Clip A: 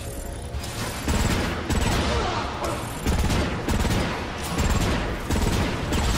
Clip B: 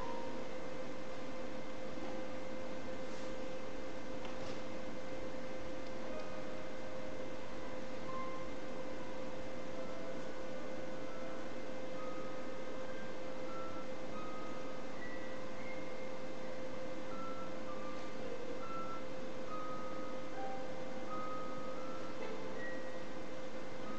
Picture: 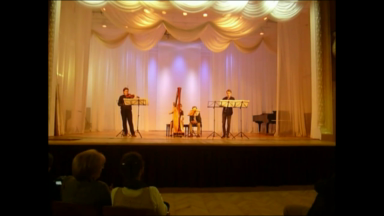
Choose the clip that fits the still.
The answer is B